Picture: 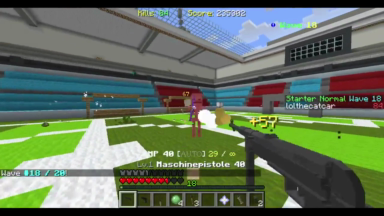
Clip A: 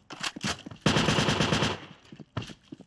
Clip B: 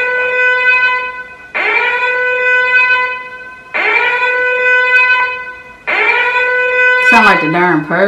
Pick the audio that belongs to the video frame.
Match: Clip A